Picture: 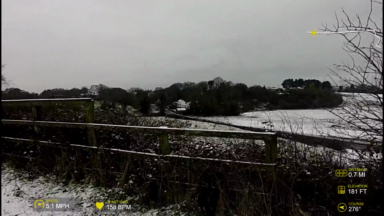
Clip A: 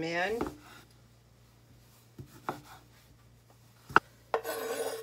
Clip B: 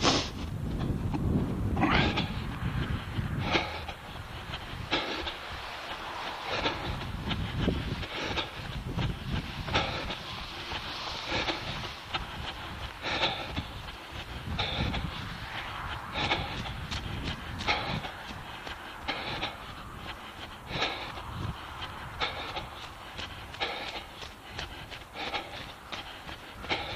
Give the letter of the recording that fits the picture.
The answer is B